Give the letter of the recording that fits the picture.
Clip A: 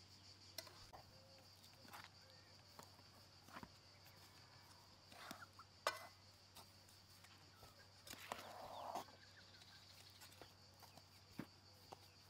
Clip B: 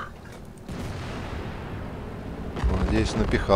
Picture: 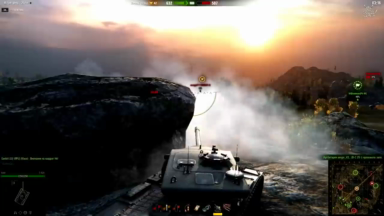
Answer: B